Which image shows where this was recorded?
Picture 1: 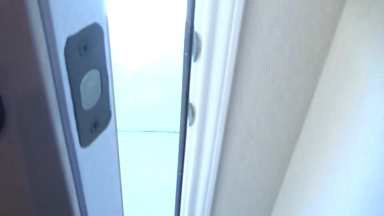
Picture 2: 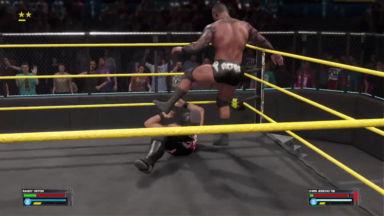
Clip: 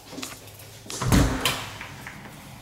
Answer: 1